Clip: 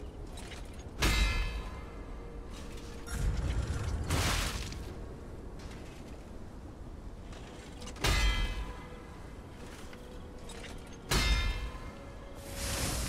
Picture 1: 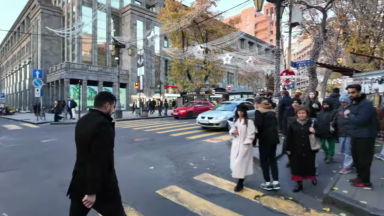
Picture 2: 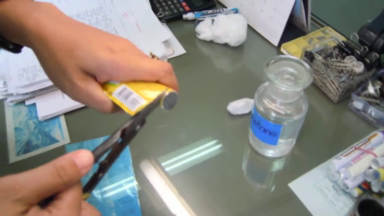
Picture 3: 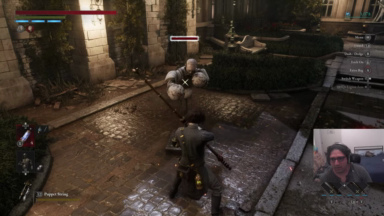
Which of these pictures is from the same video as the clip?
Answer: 3